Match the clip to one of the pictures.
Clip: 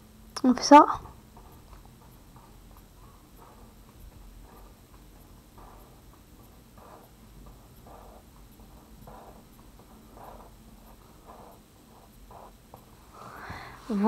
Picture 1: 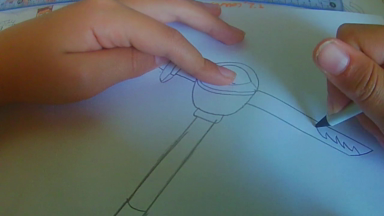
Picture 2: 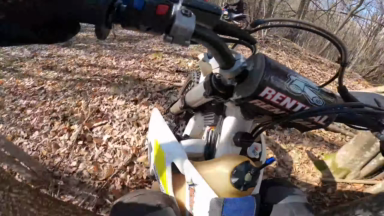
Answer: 1